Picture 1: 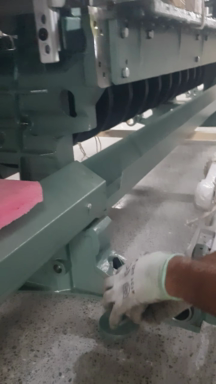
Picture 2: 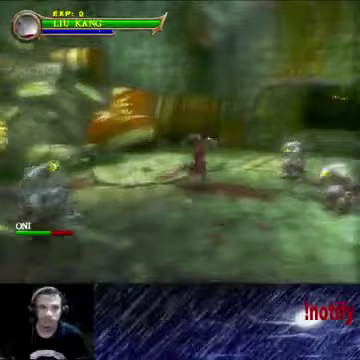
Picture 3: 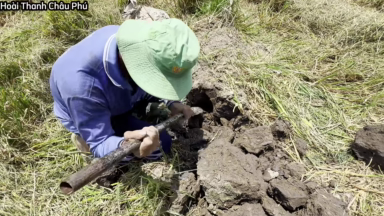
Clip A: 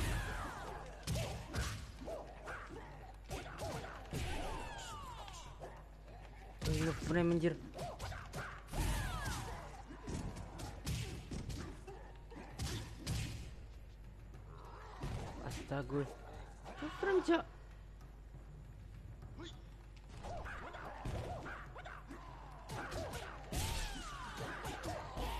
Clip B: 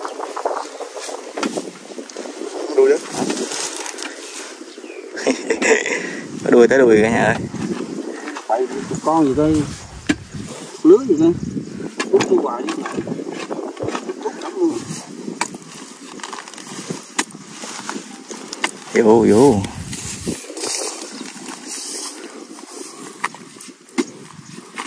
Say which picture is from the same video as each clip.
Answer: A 2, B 3